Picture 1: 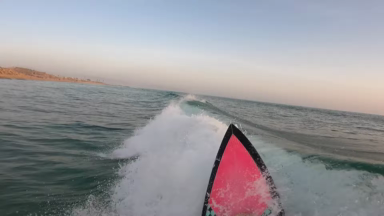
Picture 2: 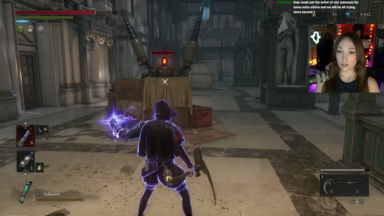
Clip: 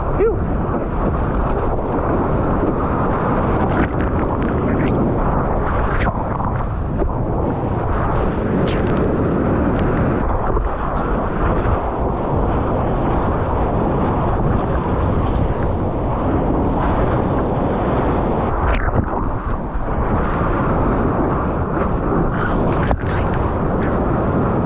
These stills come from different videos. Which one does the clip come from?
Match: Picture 1